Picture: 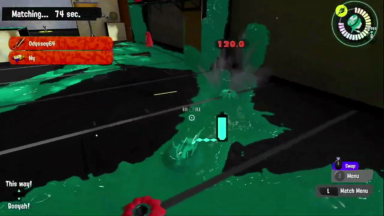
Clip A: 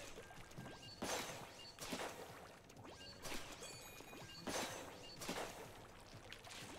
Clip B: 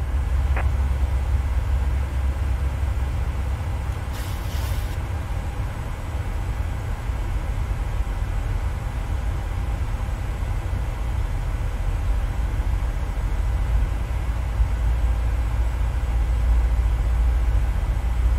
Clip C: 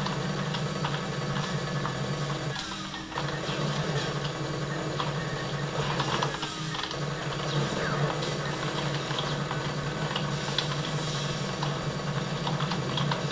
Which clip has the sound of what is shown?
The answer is A